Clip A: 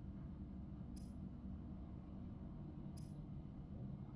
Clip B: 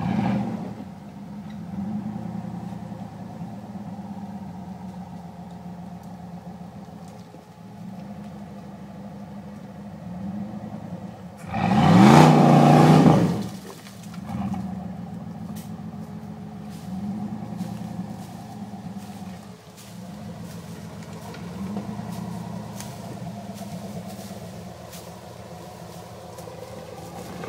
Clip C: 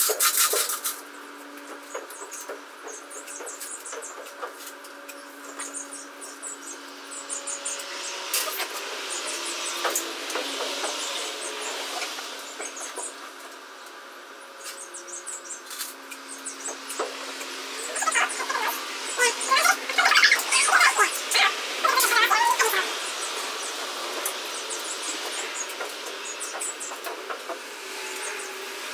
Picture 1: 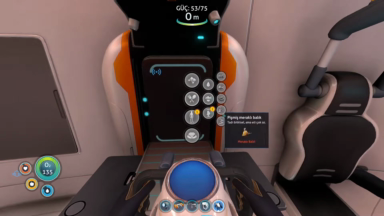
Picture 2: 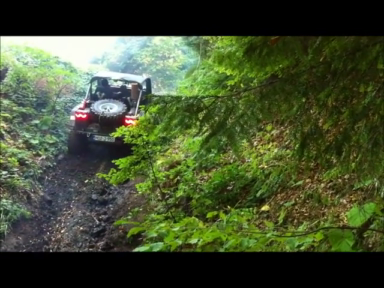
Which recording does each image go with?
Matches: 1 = A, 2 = B